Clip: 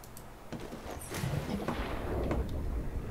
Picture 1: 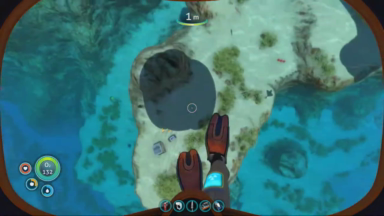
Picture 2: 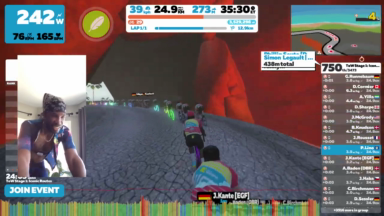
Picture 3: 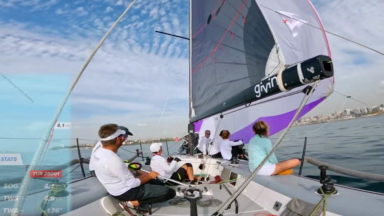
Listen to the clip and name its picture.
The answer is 1